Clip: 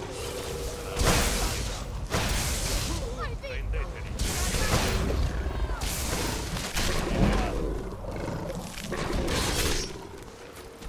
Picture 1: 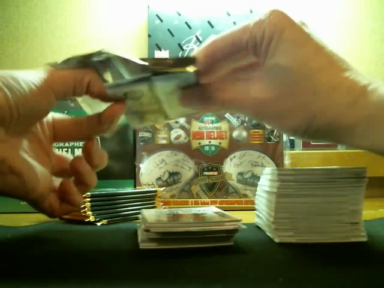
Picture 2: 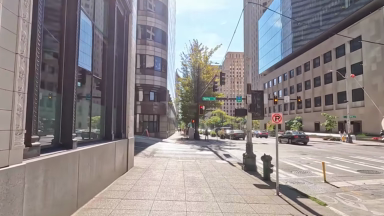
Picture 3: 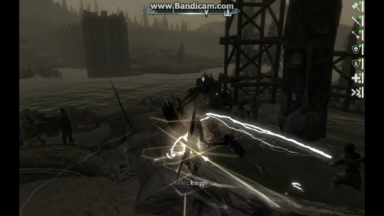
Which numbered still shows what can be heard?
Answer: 3